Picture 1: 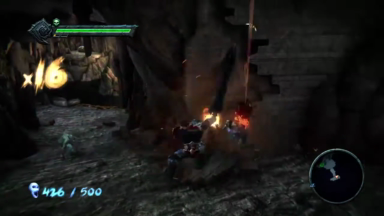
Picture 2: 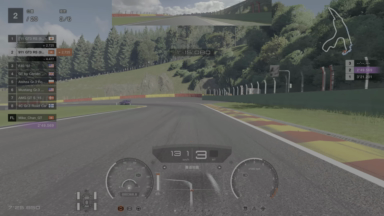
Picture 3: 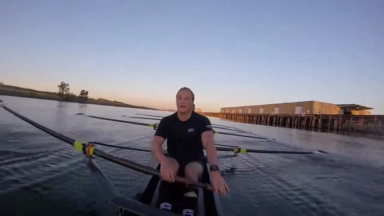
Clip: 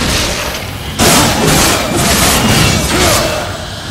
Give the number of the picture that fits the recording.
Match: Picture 1